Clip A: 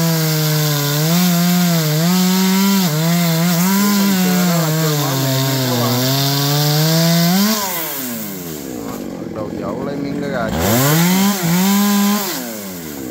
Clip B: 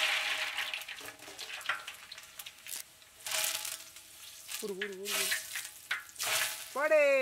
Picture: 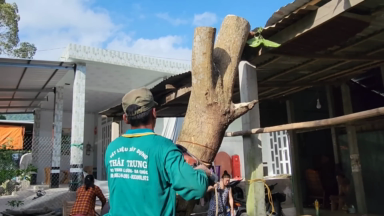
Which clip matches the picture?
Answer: A